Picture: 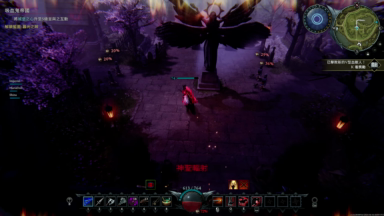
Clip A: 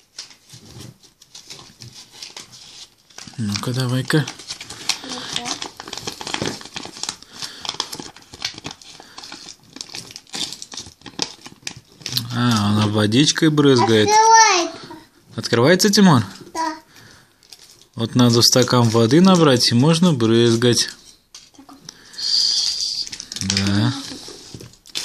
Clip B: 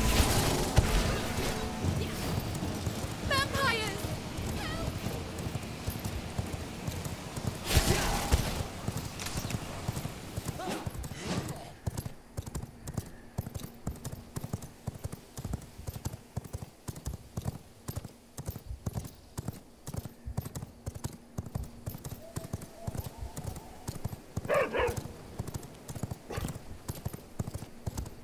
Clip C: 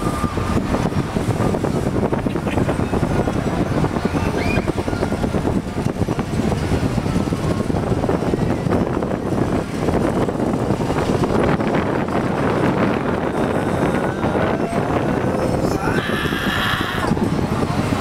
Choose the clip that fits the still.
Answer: B